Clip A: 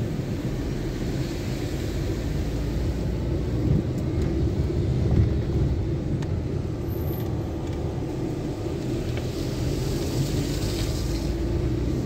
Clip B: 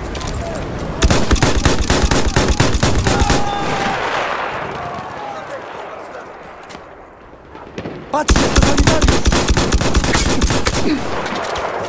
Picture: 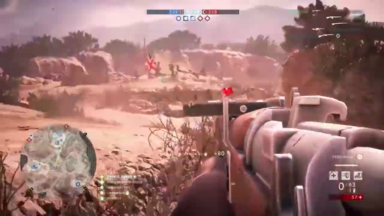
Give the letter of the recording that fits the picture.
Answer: B